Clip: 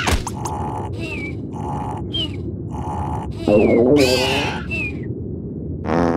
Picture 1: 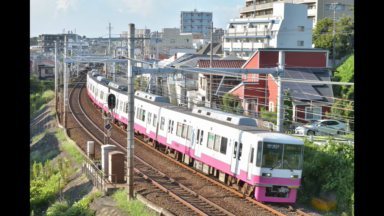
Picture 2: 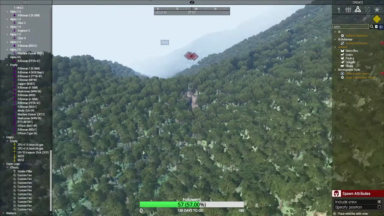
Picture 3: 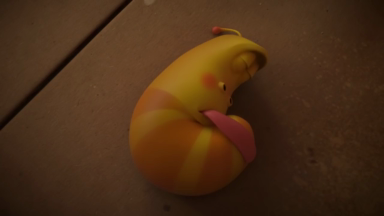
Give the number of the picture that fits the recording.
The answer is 3